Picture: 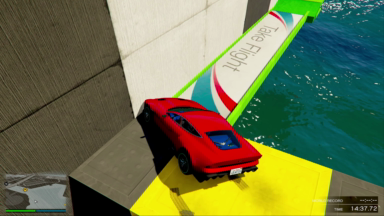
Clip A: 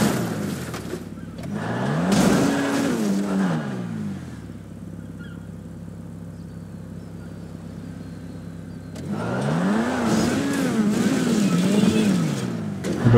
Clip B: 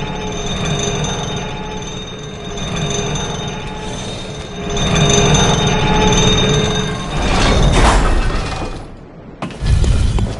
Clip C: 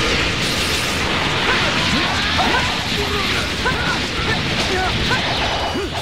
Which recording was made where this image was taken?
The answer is A